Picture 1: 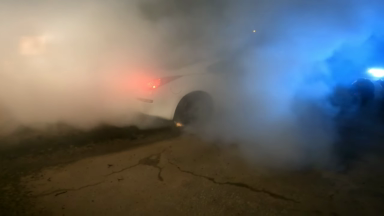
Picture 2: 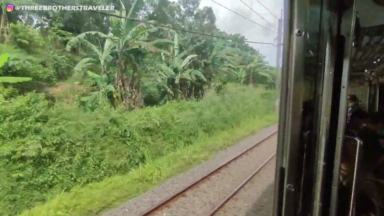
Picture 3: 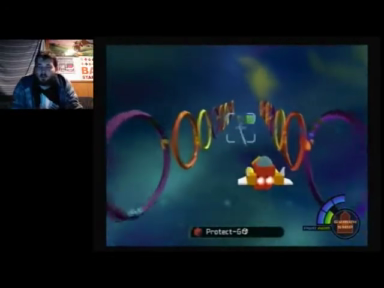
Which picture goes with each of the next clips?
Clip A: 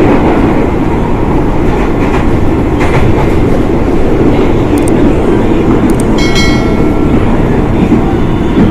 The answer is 2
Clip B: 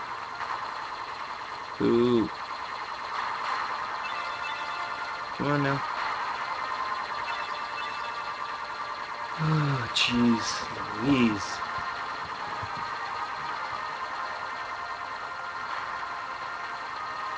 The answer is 3